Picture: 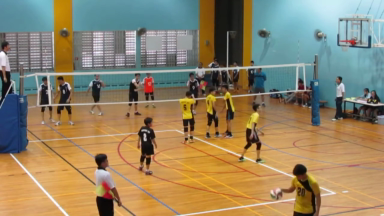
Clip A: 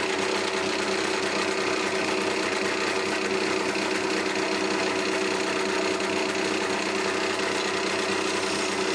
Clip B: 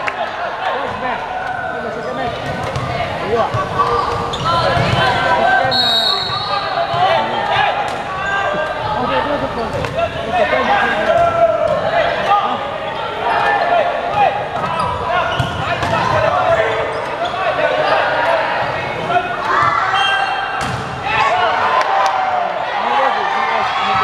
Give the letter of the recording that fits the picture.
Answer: B